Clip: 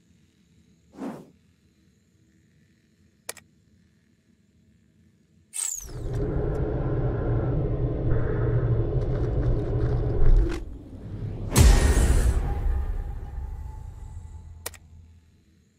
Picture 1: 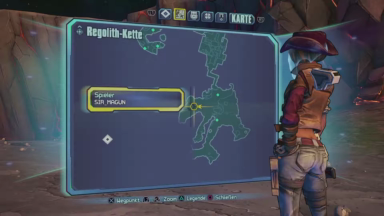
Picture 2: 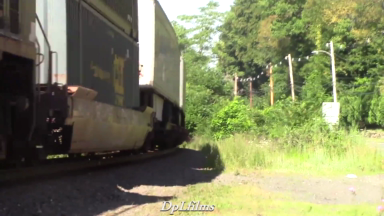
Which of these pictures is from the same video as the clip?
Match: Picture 1